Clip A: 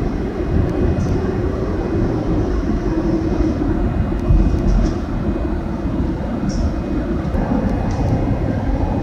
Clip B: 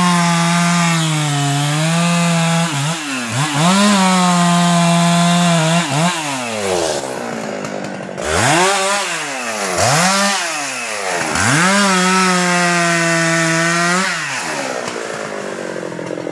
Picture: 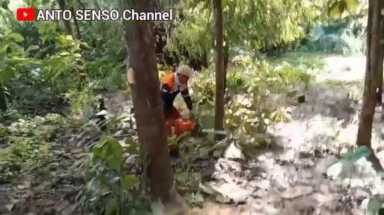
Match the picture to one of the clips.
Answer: B